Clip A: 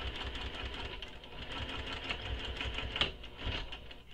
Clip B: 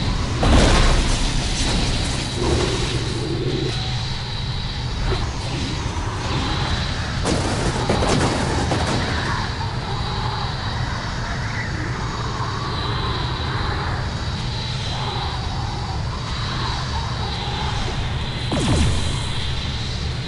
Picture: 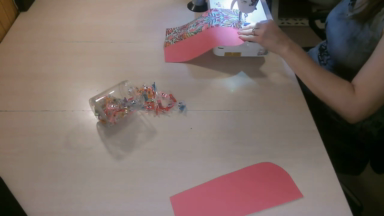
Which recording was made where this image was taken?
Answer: A